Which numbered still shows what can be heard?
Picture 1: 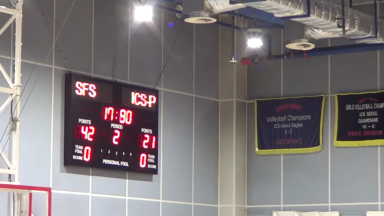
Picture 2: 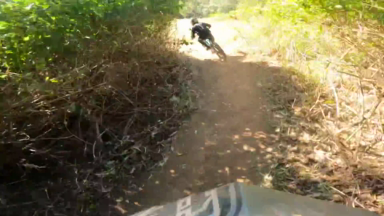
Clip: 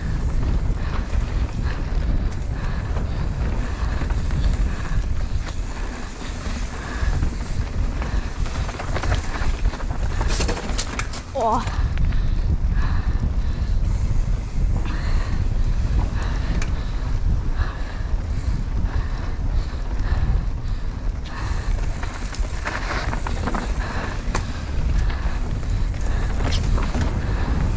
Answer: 2